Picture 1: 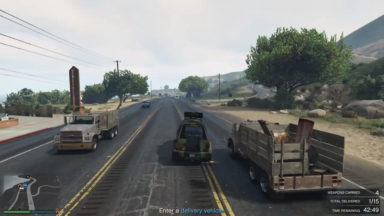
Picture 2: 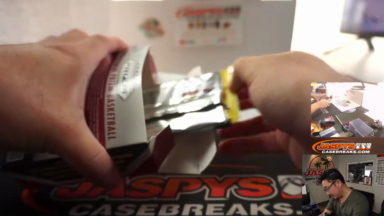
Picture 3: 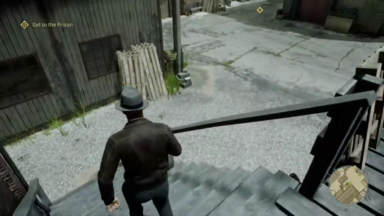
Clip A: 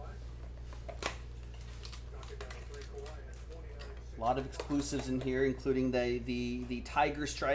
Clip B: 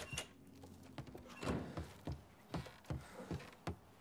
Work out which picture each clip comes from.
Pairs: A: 2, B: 3